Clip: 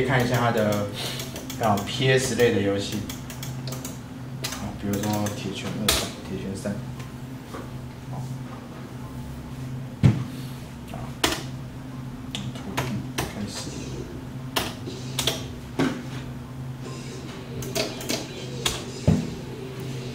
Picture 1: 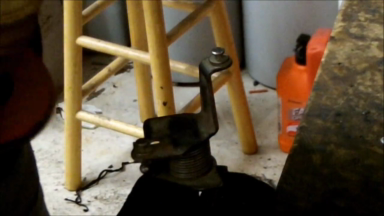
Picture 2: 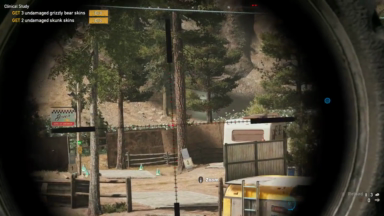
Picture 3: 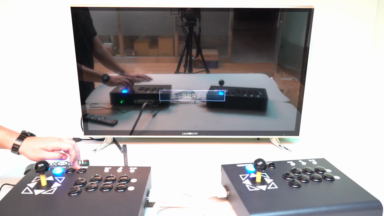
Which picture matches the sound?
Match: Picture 3